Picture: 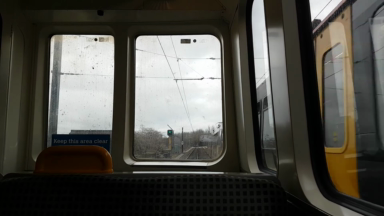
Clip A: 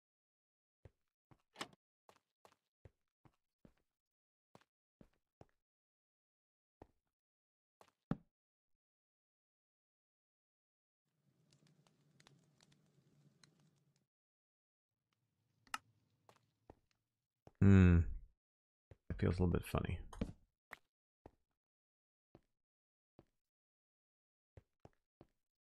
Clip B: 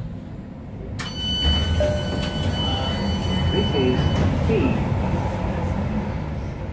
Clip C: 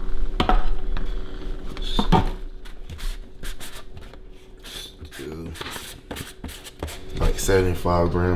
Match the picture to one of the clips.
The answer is B